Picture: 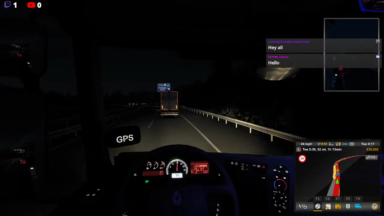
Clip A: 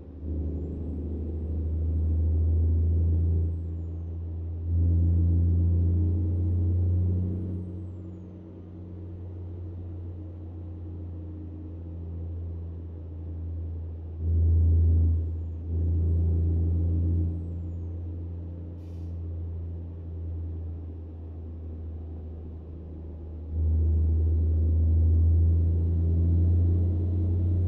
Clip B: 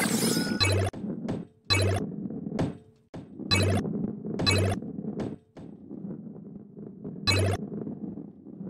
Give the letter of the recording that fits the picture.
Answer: A